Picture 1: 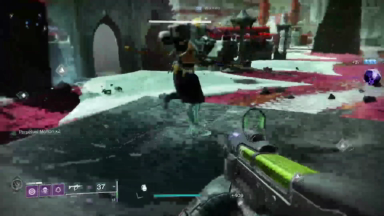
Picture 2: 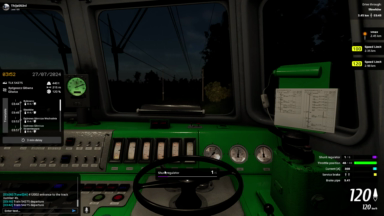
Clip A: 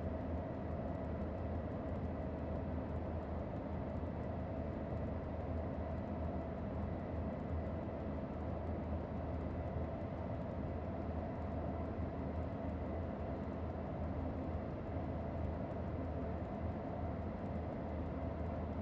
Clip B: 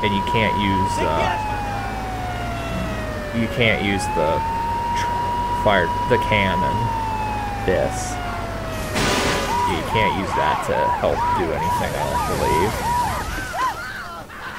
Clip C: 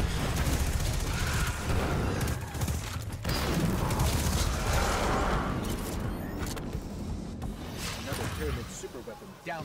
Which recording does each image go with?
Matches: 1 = C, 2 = A